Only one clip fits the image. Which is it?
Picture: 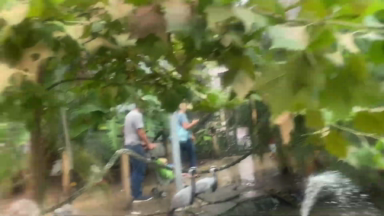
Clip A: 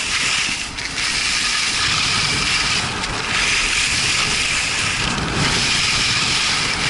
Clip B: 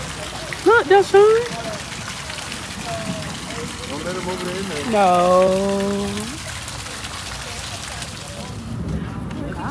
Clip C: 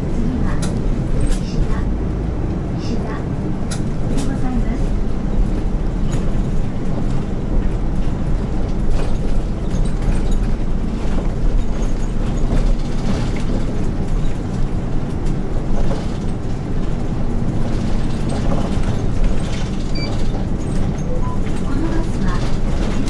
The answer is B